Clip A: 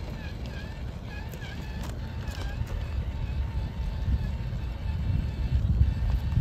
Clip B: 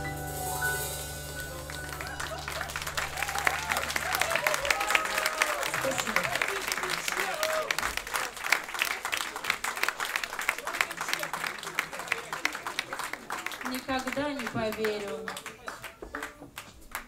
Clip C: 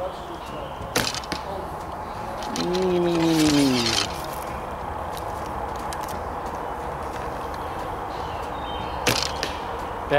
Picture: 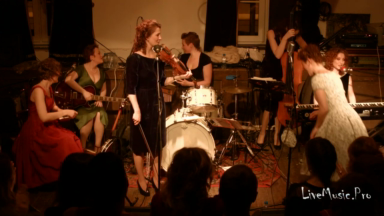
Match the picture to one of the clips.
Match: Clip B